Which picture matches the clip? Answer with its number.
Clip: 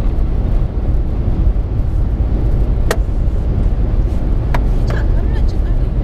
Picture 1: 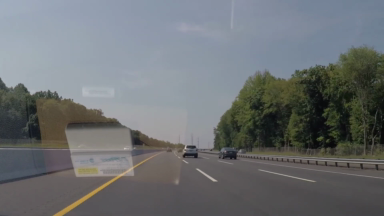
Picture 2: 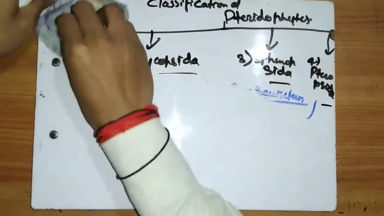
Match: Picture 1